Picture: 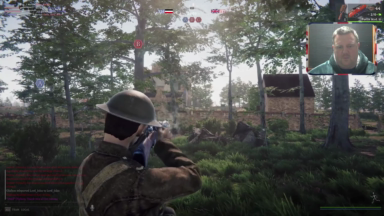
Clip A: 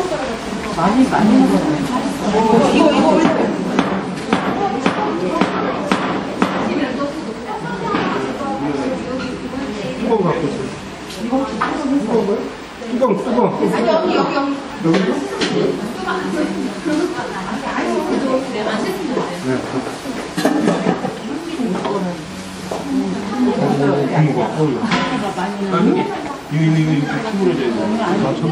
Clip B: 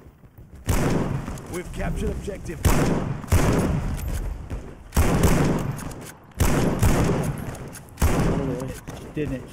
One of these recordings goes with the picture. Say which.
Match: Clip B